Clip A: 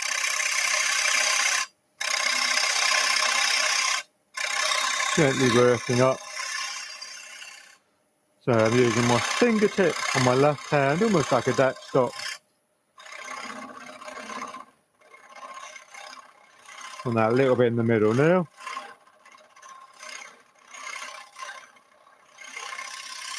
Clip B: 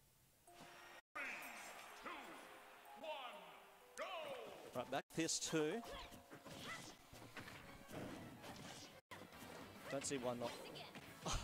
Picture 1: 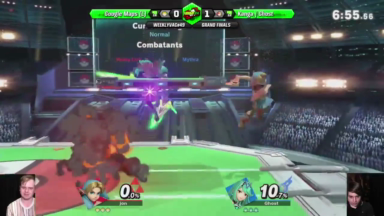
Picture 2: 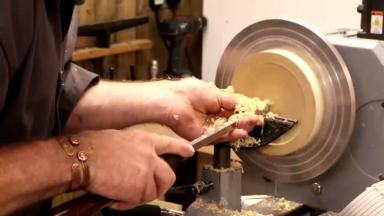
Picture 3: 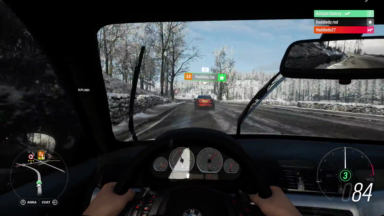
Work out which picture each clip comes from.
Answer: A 2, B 1